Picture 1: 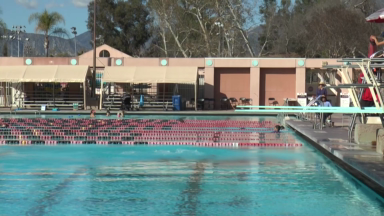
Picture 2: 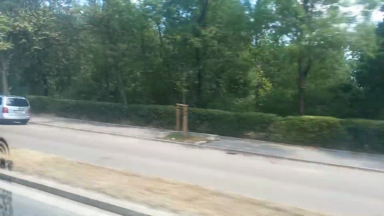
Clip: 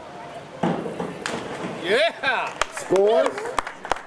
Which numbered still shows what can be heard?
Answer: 1